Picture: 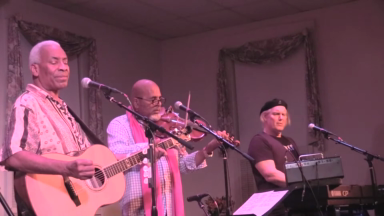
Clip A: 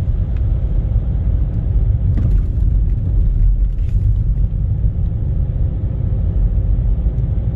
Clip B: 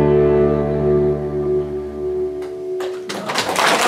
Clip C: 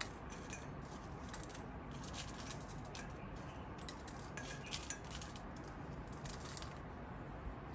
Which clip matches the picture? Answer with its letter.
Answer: B